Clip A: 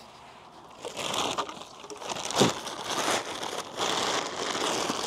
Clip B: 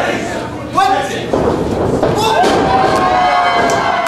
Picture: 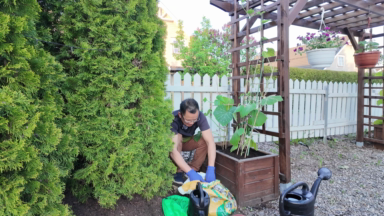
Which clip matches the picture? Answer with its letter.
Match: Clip A